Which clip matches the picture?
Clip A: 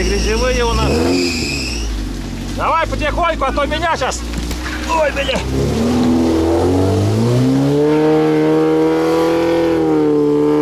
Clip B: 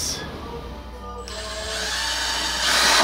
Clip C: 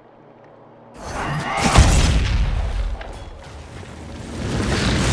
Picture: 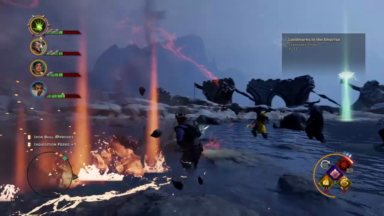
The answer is C